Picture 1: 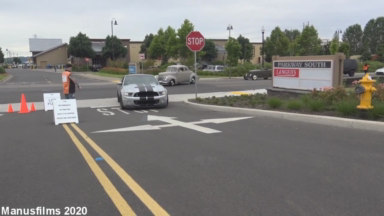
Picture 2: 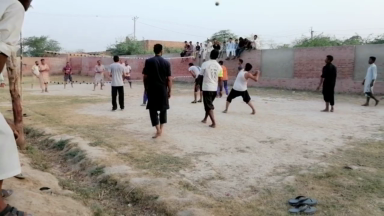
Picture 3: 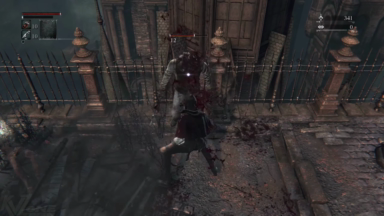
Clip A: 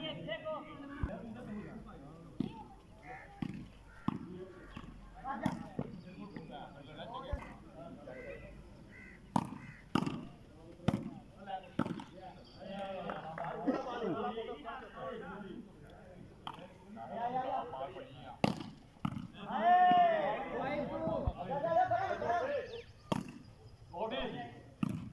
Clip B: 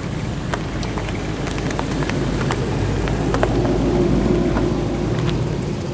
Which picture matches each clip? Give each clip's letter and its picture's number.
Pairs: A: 2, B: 1